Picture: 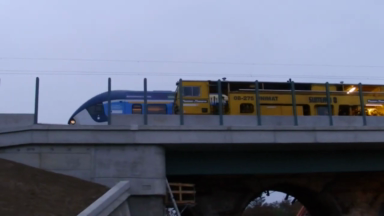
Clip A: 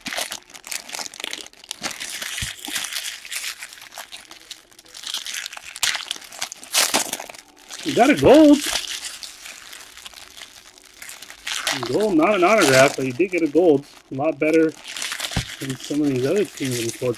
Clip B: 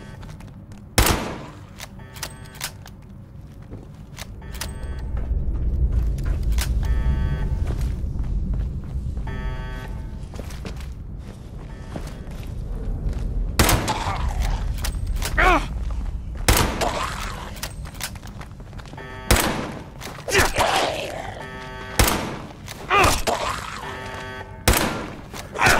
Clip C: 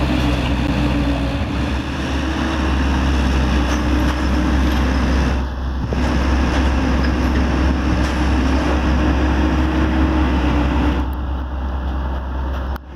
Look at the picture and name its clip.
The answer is C